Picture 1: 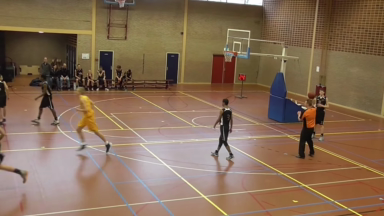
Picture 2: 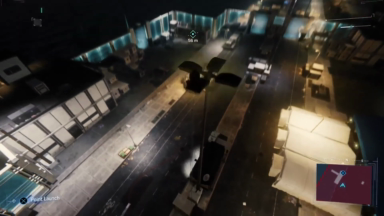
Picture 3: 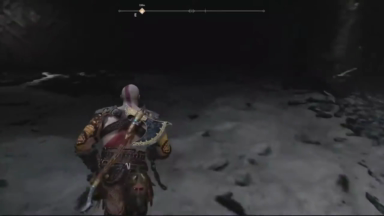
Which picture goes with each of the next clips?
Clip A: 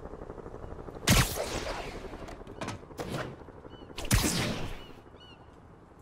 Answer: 2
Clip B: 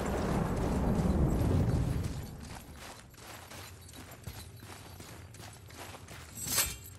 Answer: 3